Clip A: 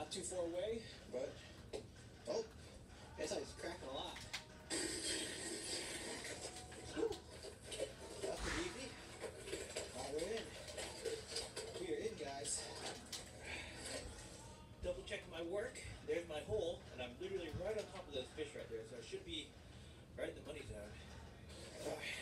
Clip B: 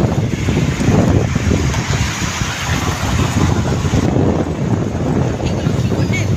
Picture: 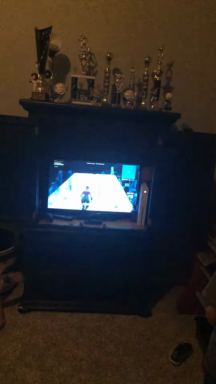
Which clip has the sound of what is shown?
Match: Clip A